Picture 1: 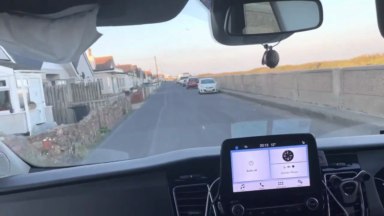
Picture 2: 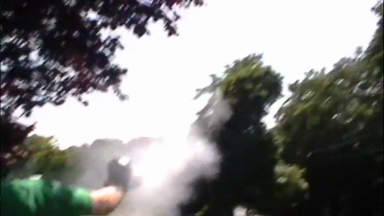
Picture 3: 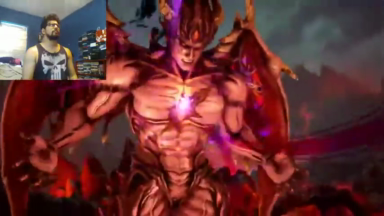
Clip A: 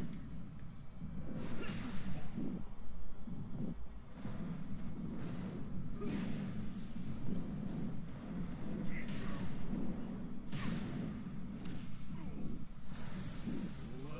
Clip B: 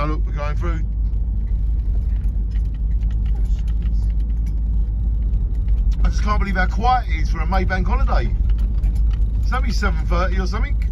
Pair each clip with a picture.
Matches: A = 3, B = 1